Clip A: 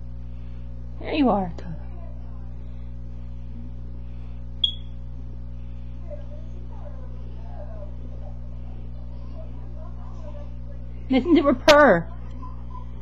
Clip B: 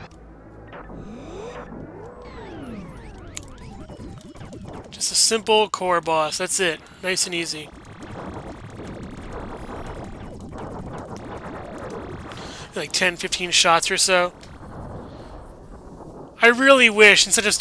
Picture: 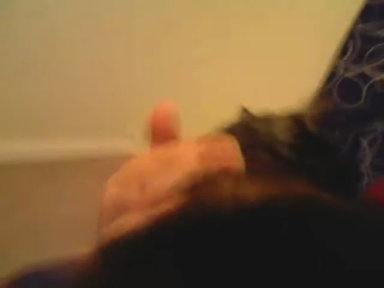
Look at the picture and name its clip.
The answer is A